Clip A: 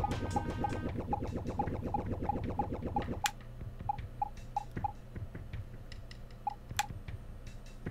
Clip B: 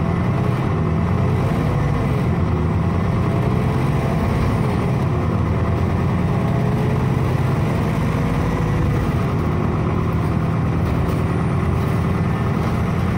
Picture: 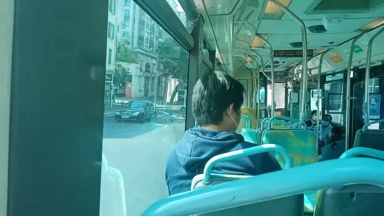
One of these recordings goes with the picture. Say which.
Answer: B